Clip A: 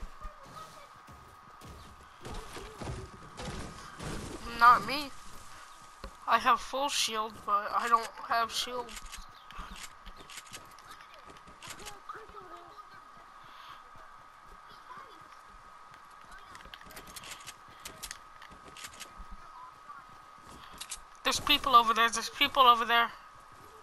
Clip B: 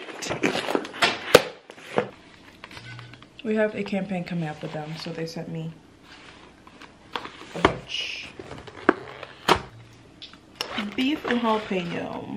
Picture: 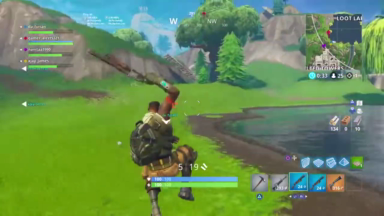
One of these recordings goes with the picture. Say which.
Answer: A